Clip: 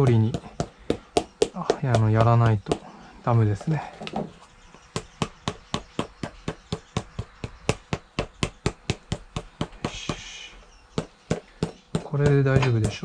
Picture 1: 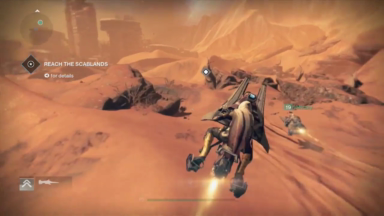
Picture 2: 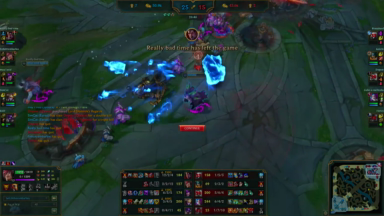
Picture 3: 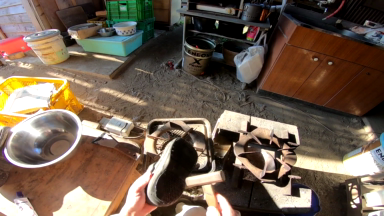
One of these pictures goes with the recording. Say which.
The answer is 3